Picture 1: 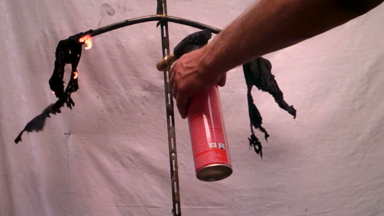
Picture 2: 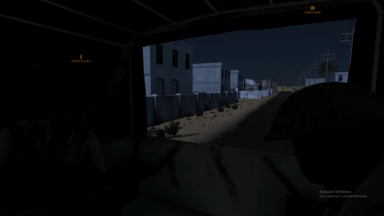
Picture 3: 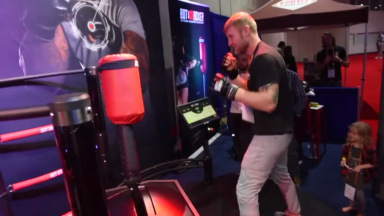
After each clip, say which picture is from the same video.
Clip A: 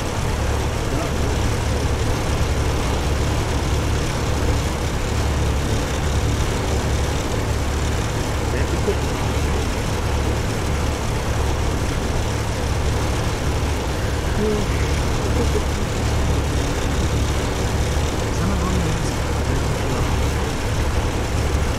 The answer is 2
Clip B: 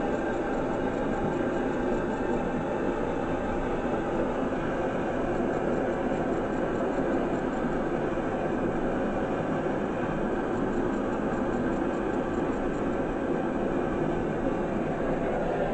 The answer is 1